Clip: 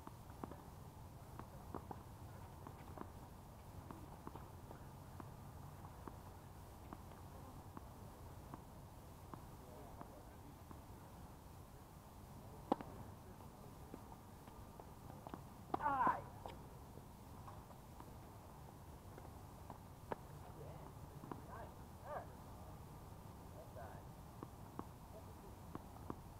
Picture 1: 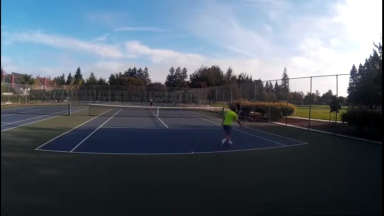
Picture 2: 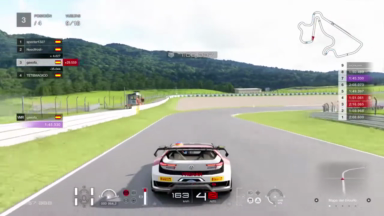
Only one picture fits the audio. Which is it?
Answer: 1